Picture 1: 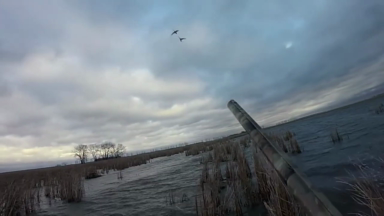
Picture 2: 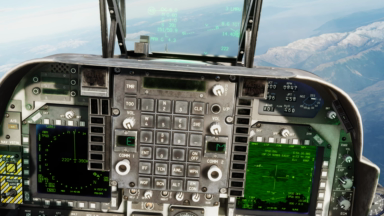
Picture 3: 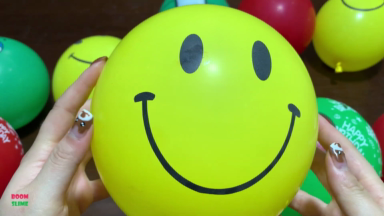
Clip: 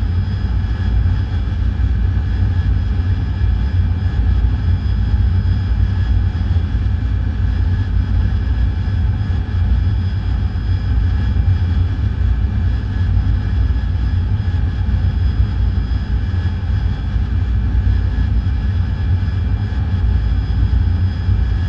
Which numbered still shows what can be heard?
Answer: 2